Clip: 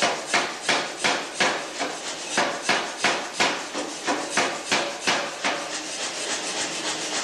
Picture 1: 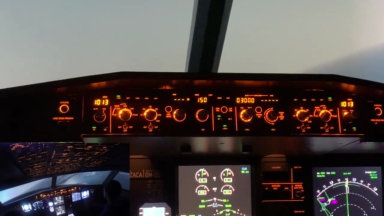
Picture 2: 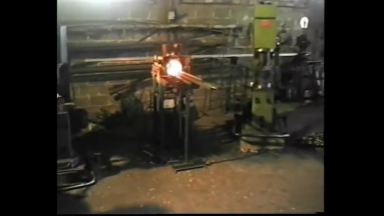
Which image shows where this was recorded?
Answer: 2